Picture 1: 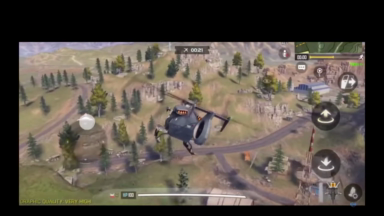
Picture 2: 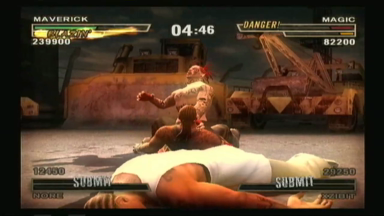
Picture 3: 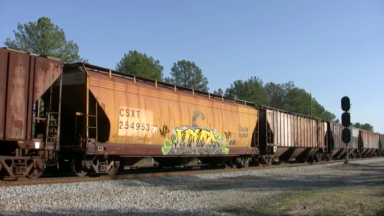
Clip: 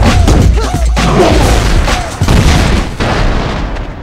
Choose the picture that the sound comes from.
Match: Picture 2